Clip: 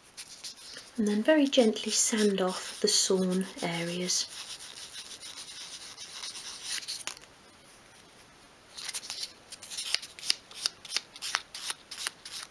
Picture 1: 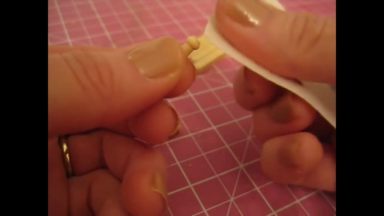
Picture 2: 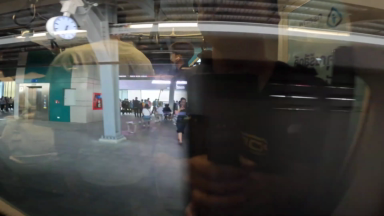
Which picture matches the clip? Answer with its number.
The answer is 1